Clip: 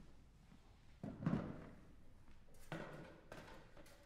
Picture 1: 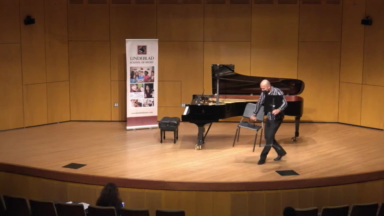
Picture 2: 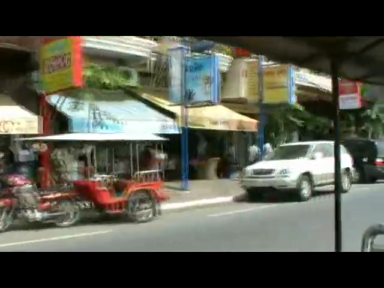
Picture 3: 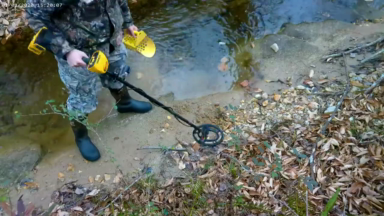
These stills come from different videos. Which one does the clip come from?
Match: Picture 1